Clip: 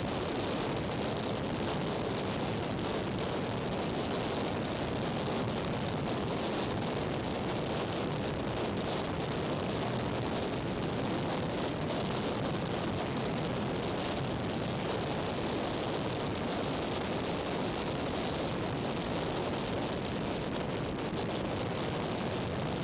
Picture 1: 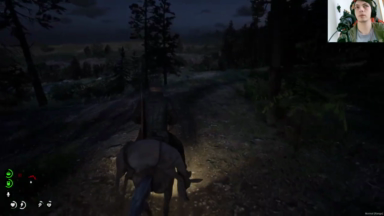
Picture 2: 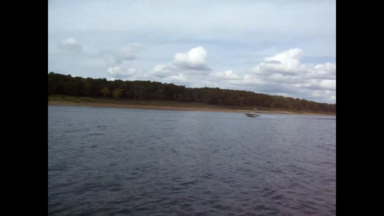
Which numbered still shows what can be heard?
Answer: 2